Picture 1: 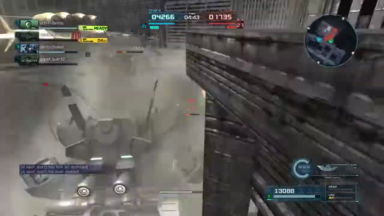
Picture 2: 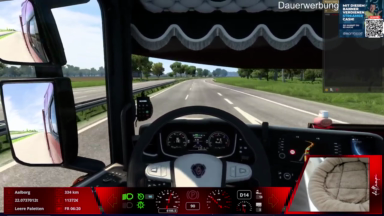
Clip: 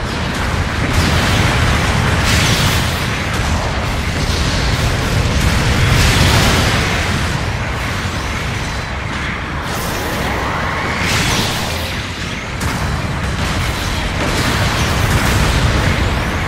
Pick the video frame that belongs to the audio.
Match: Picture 1